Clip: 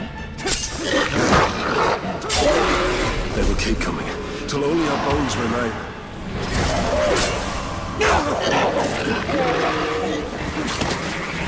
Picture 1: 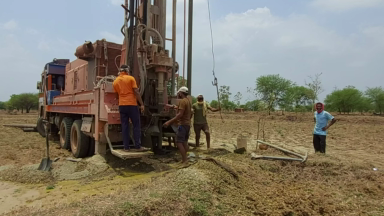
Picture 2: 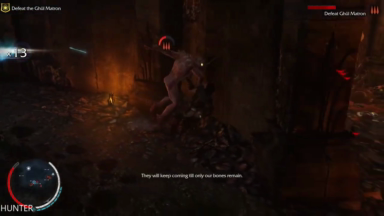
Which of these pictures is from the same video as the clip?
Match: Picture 2